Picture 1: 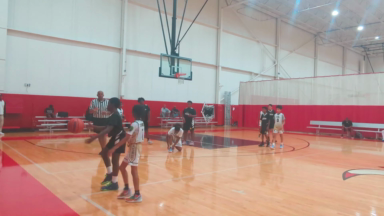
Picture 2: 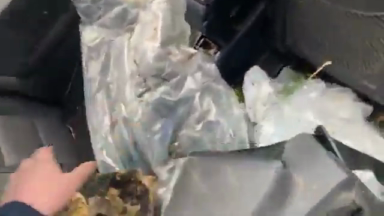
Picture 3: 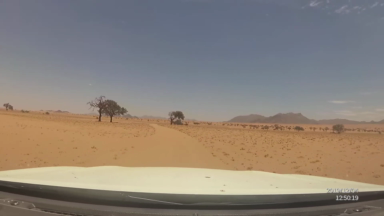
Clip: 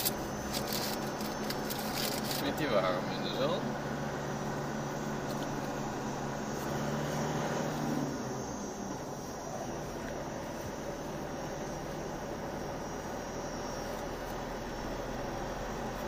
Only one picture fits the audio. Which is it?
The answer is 3